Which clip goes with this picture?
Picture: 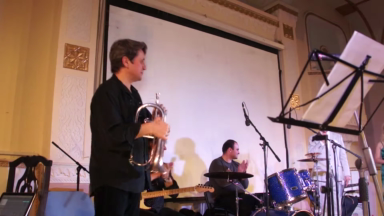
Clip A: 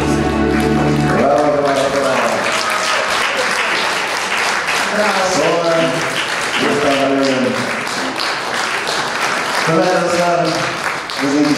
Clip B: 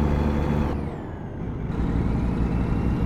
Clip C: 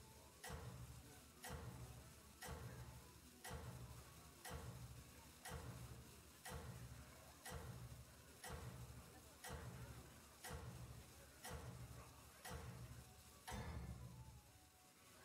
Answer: A